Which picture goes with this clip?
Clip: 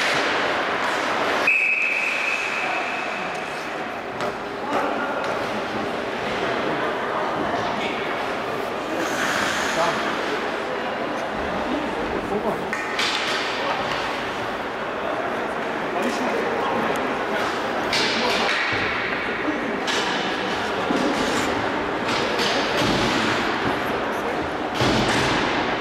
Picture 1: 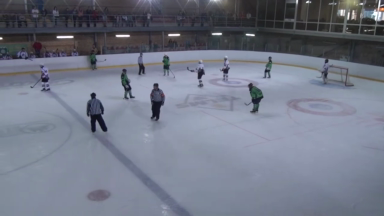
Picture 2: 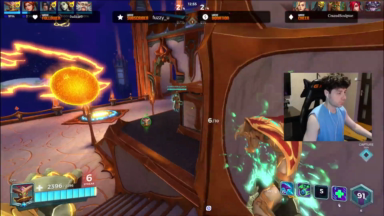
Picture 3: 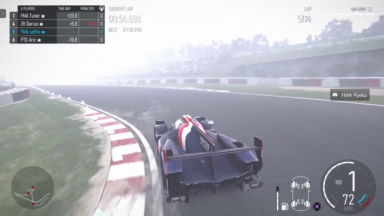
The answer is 1